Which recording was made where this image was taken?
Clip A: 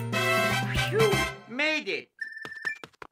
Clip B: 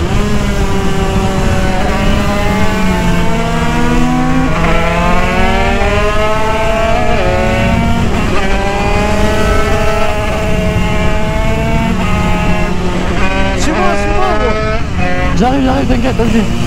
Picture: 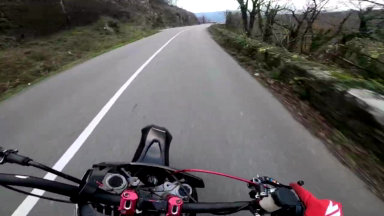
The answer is B